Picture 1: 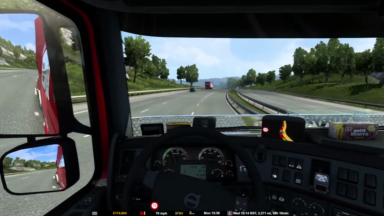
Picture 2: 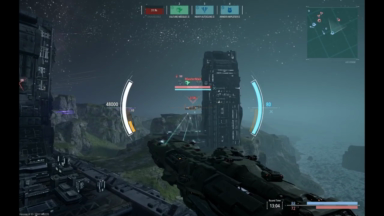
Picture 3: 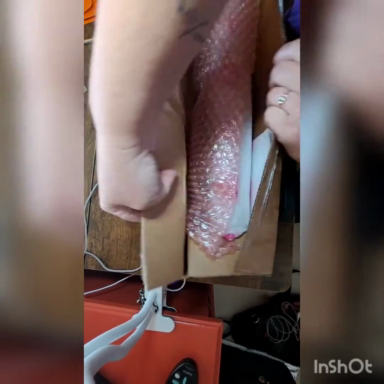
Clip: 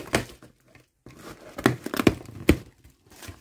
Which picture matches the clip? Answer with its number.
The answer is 3